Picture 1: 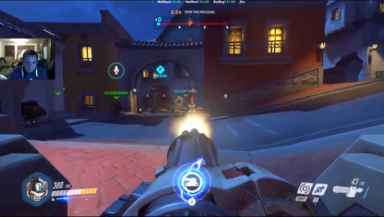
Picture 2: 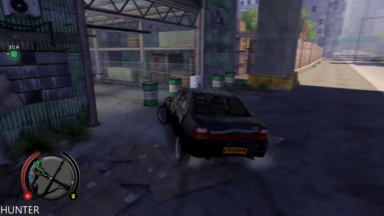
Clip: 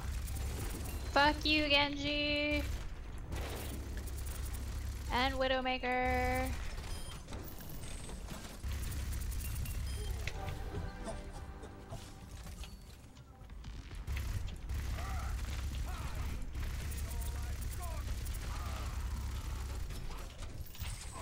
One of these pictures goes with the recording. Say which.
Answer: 1